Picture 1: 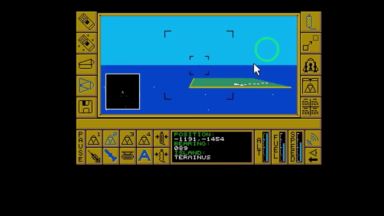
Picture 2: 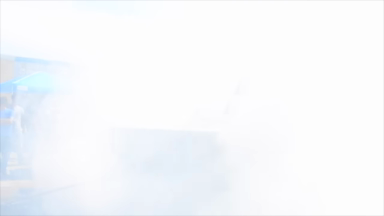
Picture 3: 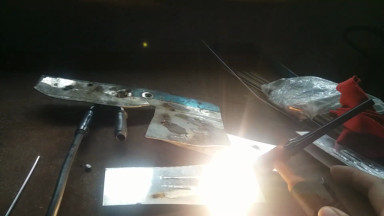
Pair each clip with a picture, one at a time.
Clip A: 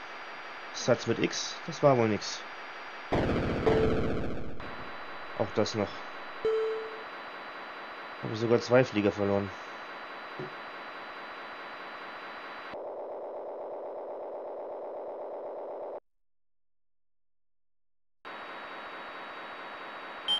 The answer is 1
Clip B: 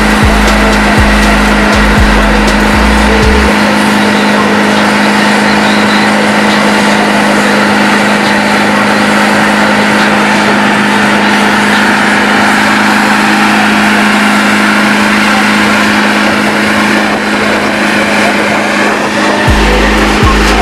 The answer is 2